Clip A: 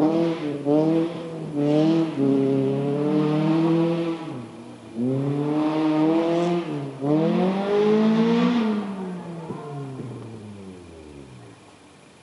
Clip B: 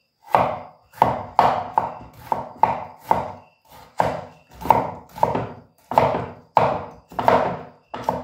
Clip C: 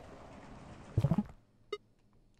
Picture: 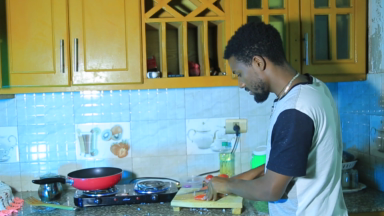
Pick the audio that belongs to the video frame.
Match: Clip B